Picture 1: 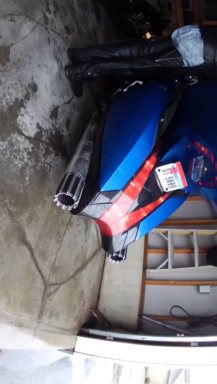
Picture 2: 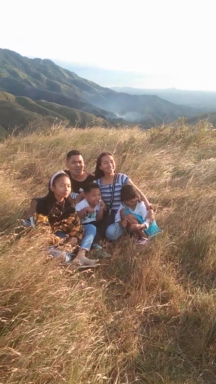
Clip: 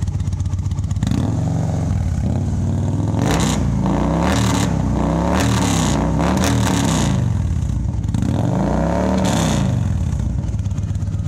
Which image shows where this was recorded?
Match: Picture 1